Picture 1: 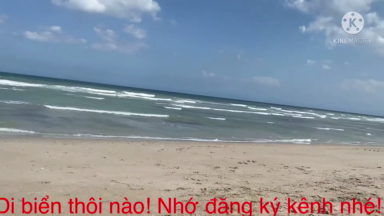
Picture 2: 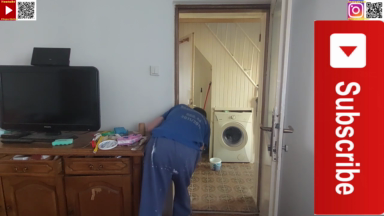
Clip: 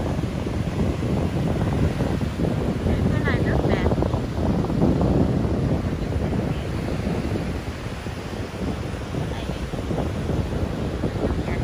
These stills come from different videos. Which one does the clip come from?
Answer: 1